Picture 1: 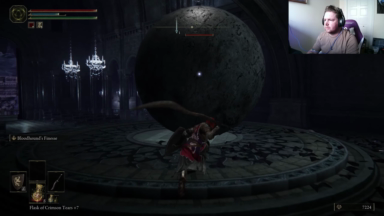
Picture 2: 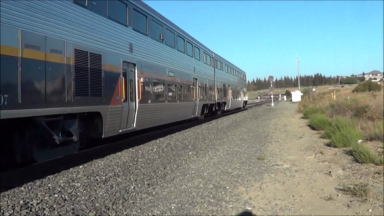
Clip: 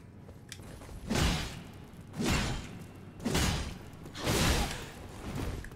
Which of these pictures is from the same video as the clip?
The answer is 1